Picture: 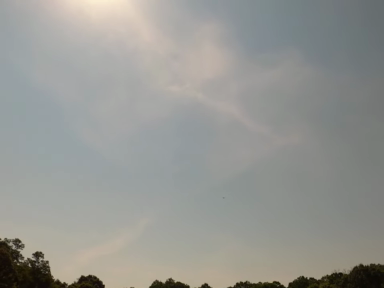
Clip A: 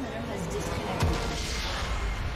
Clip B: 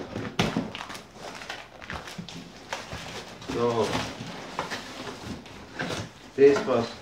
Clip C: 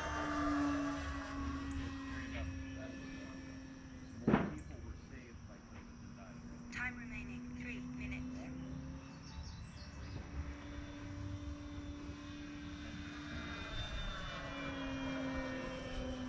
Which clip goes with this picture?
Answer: C